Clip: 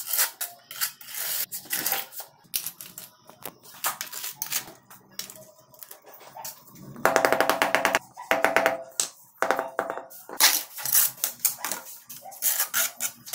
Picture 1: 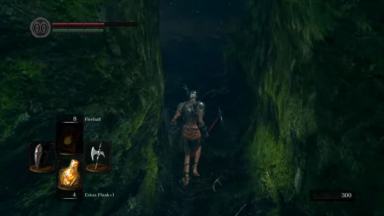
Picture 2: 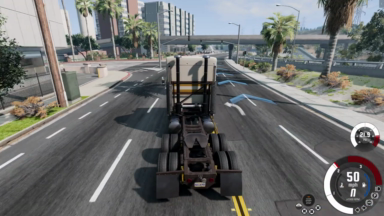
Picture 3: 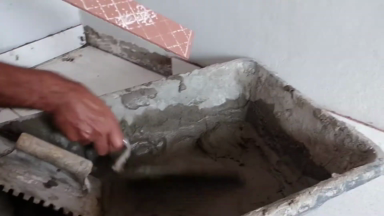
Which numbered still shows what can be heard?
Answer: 3